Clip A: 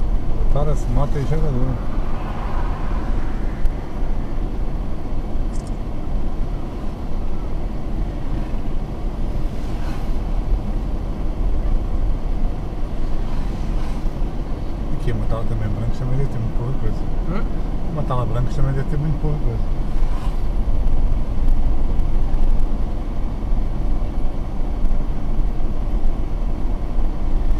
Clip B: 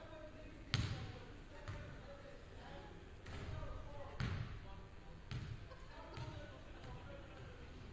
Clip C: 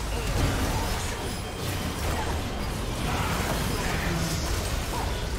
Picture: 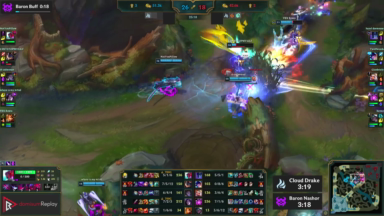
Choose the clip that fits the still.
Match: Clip C